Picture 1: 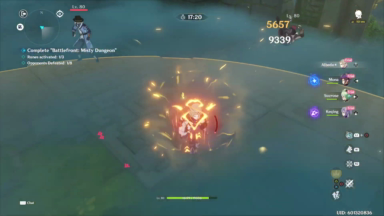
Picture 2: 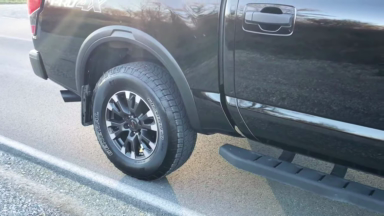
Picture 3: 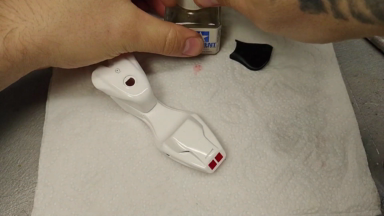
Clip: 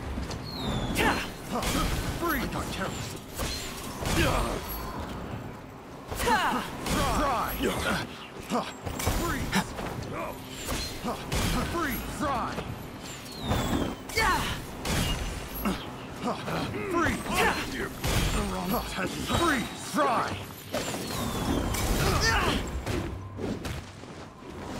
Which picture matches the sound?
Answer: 1